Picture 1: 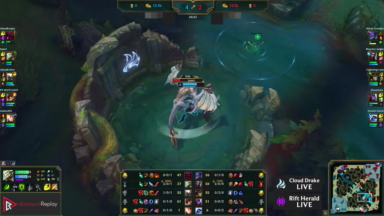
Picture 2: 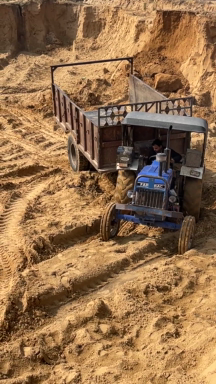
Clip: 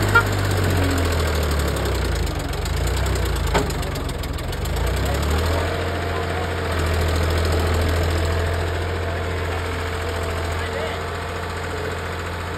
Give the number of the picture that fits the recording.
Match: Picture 2